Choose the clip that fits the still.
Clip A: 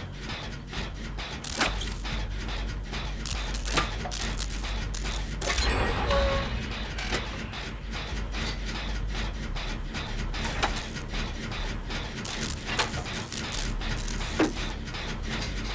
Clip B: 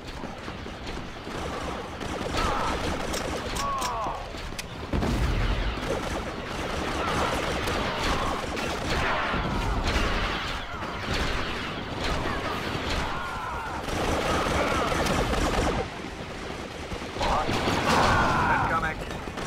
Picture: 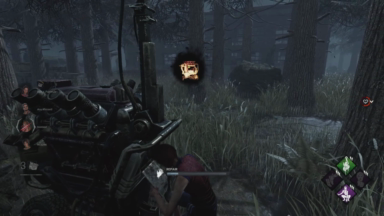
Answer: A